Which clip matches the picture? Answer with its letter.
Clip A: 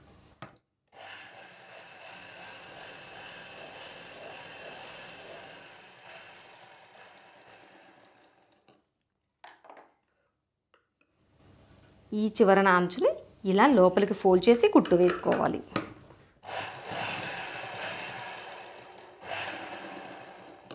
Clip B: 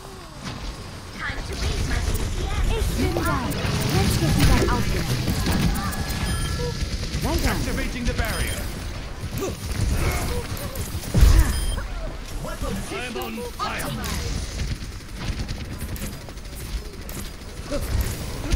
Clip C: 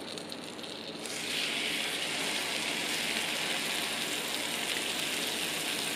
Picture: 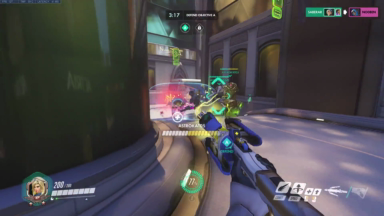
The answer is B